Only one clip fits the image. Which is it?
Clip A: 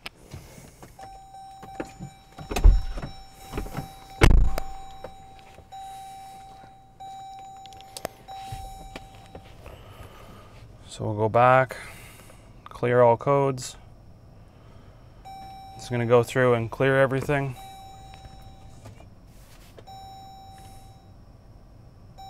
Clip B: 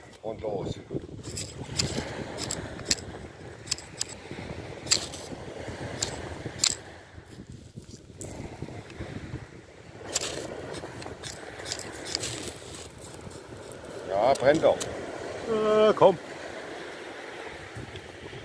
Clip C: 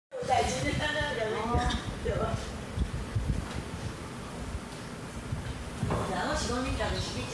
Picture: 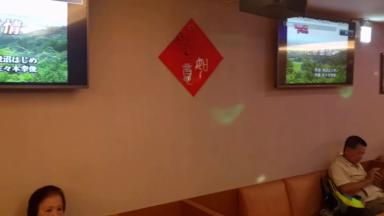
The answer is C